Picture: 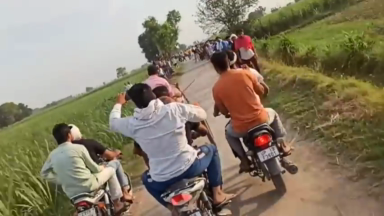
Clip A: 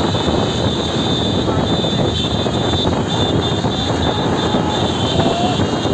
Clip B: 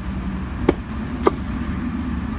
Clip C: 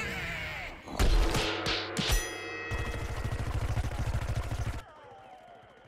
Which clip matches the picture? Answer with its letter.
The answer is A